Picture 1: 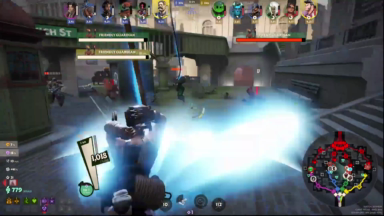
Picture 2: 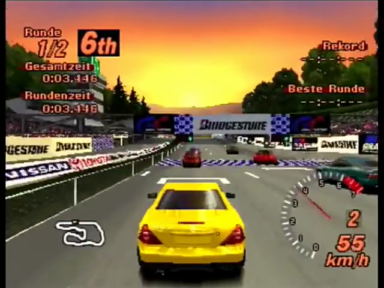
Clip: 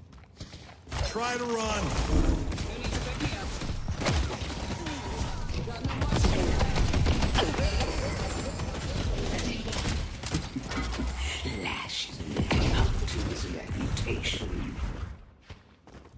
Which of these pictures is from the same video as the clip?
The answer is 1